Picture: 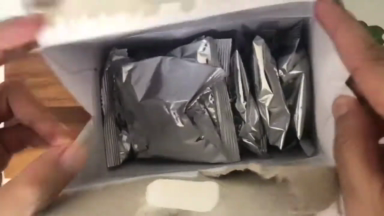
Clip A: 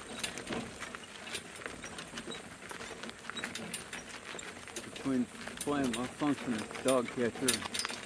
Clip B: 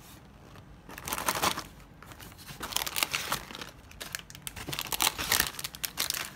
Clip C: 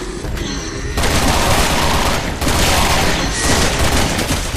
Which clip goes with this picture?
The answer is B